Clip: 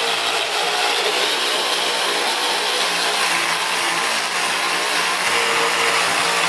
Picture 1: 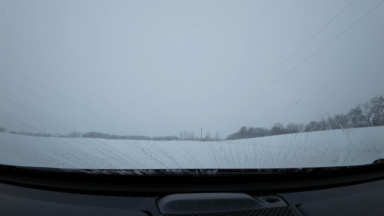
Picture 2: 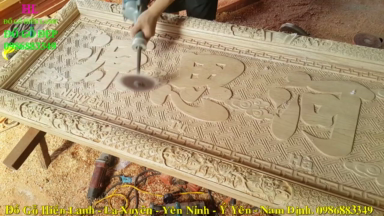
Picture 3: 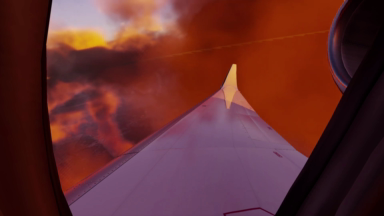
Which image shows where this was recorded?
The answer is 2